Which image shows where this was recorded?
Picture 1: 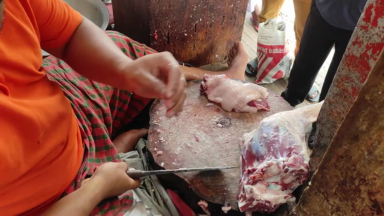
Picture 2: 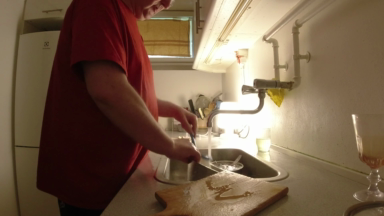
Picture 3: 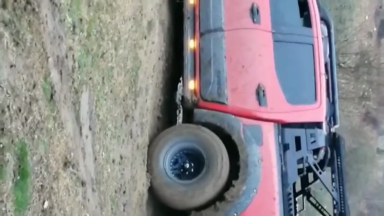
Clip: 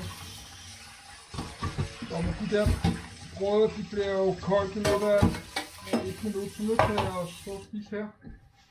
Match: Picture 2